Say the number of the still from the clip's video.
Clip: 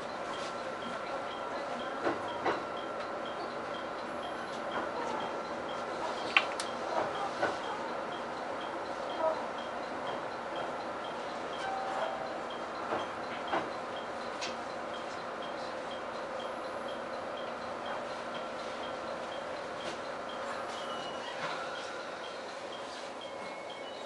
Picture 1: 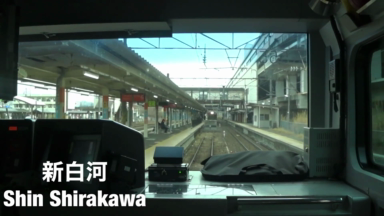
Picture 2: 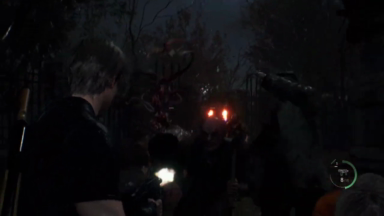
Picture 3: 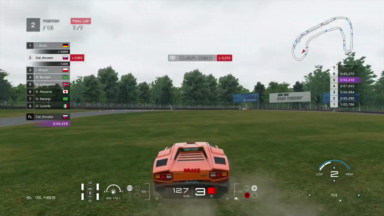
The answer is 1